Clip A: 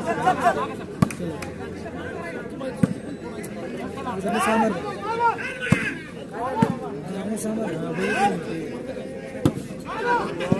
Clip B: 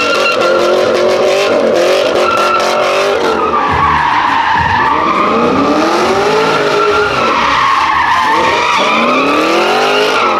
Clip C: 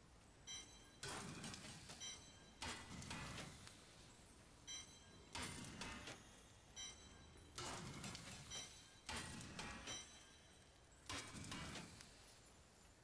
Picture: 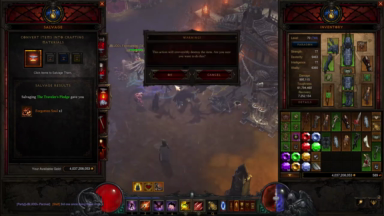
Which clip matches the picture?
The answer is C